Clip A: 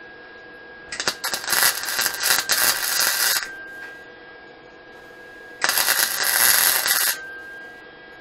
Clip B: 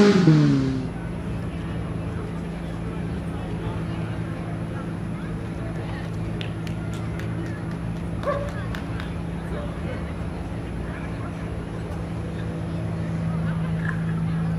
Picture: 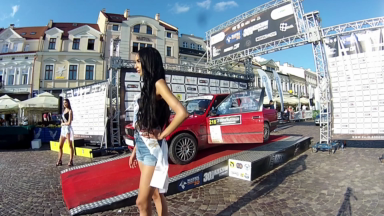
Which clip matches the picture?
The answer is B